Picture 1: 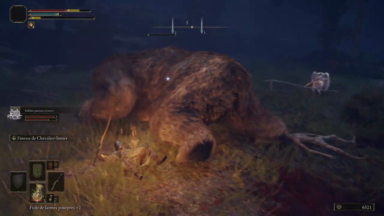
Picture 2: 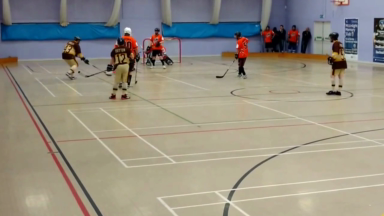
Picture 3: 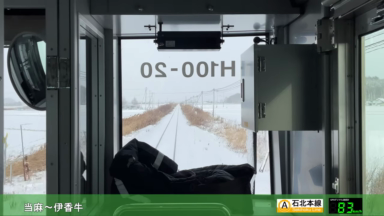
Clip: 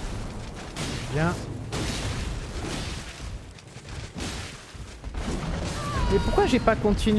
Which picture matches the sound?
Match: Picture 1